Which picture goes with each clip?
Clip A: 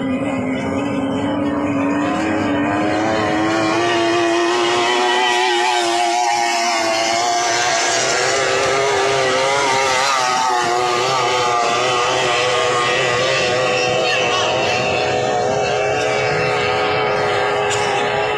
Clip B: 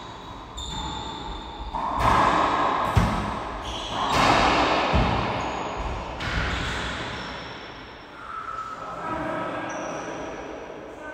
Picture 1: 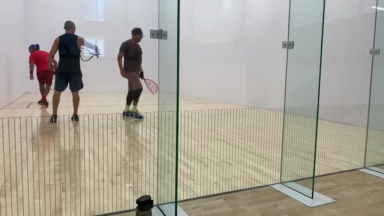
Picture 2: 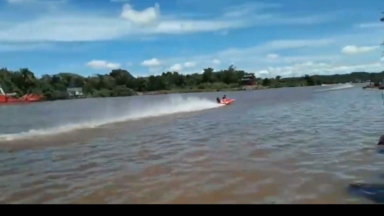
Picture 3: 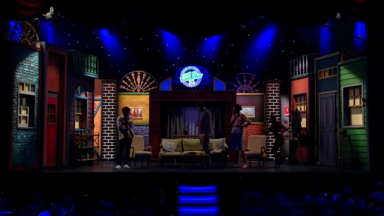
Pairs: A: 2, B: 1